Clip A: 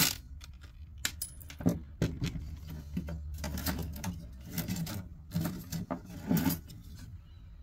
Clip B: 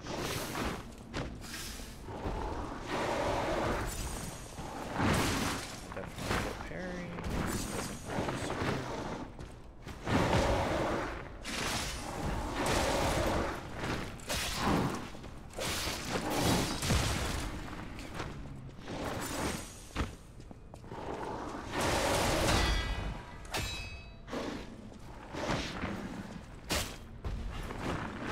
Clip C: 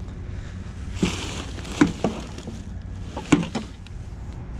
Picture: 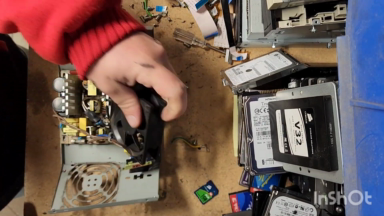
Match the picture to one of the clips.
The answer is A